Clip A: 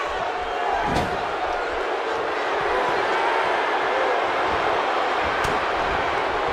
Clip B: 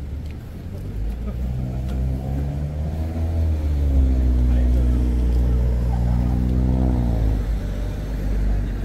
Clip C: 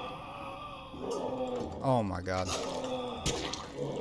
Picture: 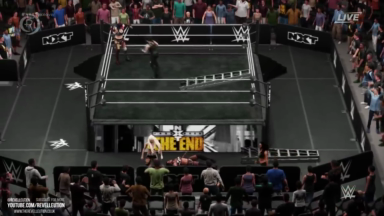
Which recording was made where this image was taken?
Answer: A